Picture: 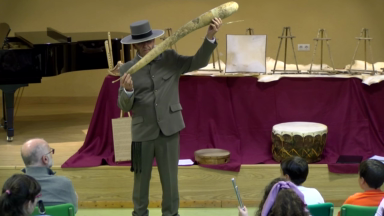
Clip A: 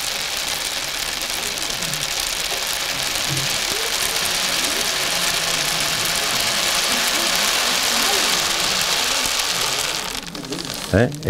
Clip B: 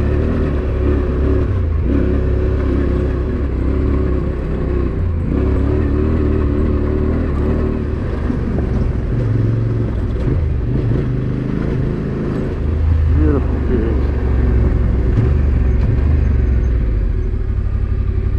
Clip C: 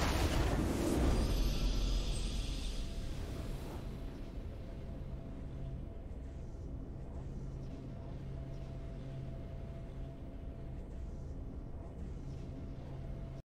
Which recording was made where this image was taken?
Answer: A